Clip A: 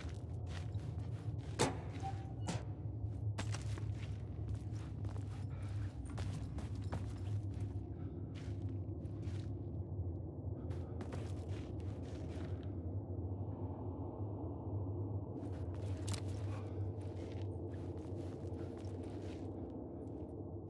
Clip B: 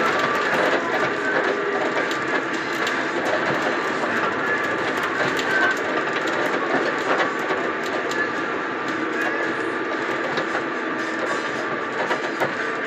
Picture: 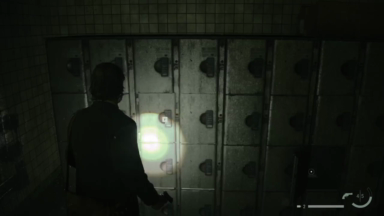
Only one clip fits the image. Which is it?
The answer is A